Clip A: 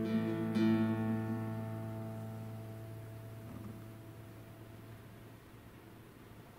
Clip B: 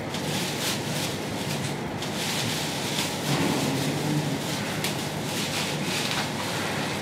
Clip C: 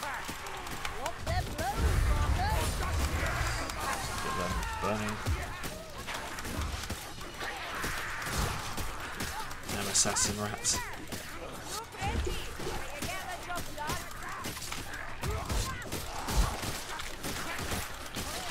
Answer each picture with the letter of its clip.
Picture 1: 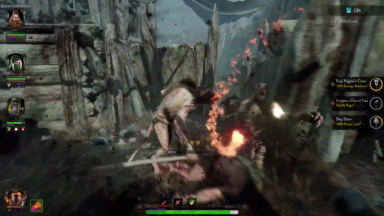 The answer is C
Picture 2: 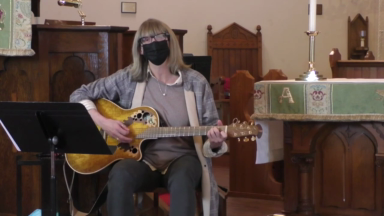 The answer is A